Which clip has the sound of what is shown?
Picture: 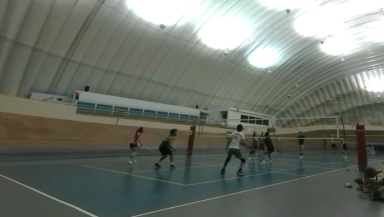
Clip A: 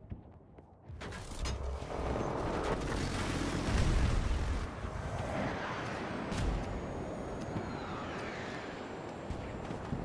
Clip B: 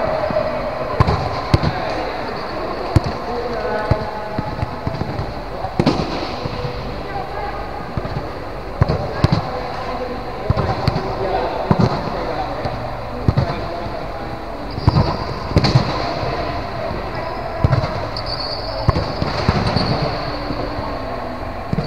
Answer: B